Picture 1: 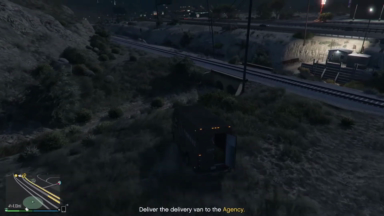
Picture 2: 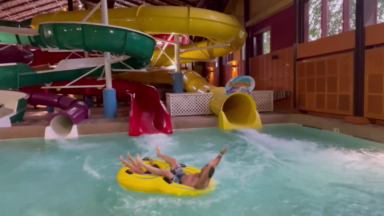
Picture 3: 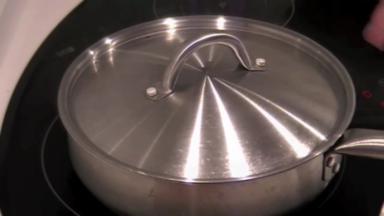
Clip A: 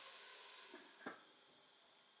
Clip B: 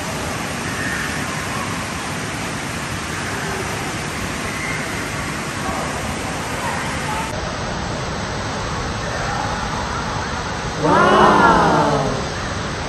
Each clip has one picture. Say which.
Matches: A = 3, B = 2